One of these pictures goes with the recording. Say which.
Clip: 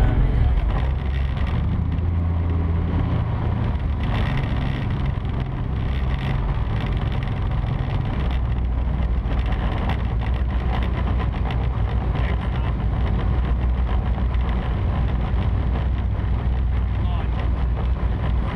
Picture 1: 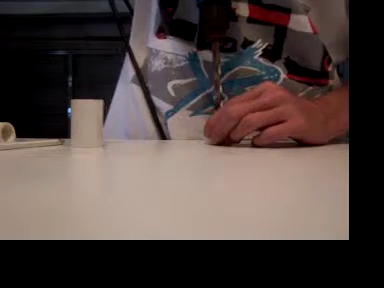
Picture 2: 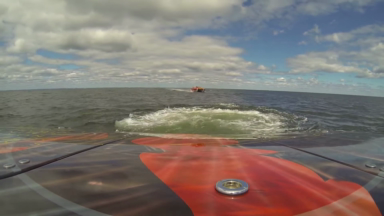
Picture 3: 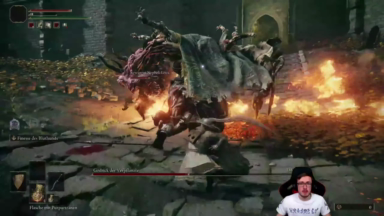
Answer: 2